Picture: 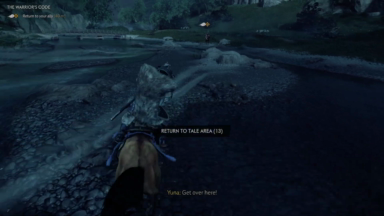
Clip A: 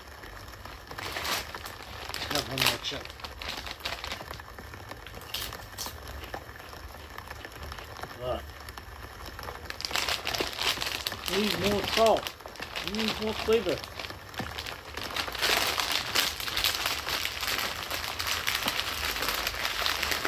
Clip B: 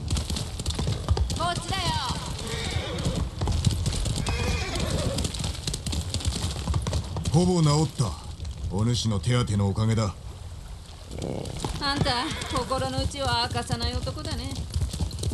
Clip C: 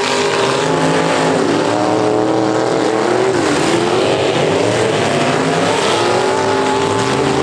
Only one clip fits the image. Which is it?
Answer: B